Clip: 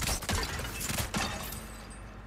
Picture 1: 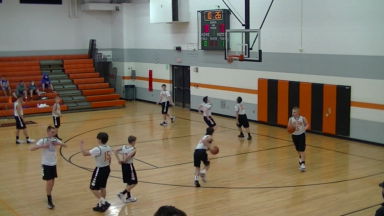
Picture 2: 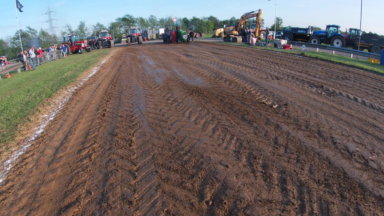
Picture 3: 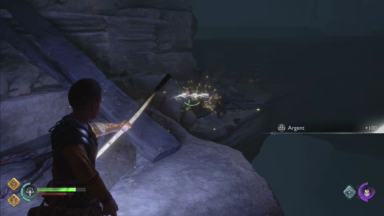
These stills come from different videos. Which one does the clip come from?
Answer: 3